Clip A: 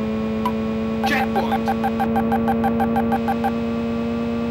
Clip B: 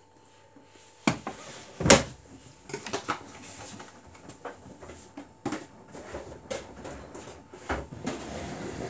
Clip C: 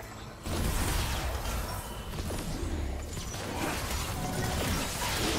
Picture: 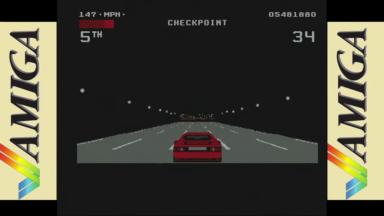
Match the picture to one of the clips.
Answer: A